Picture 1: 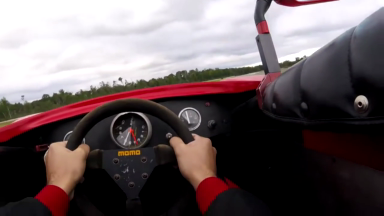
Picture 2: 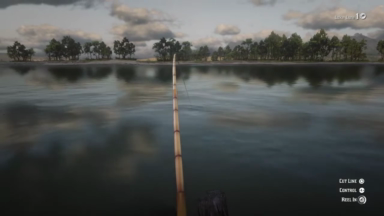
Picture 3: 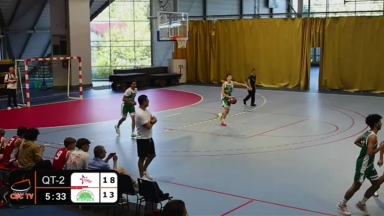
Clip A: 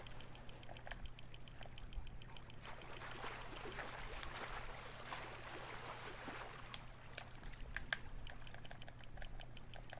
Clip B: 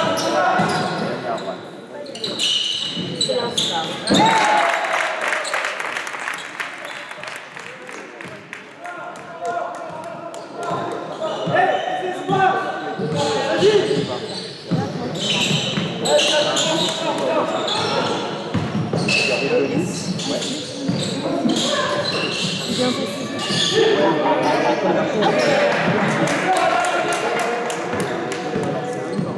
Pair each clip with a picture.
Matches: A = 2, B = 3